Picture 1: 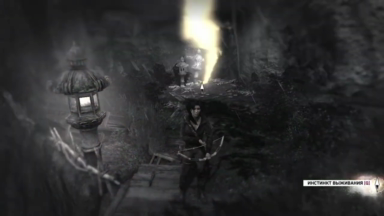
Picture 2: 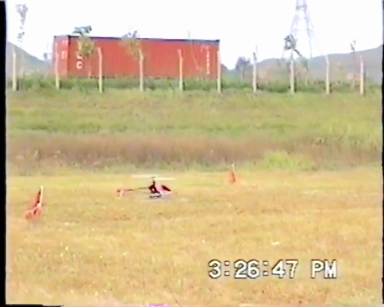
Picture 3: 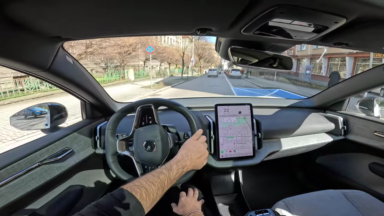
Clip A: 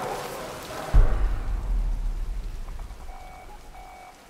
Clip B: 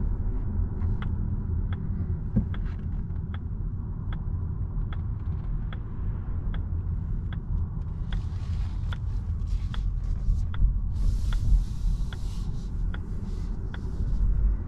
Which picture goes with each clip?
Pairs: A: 1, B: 3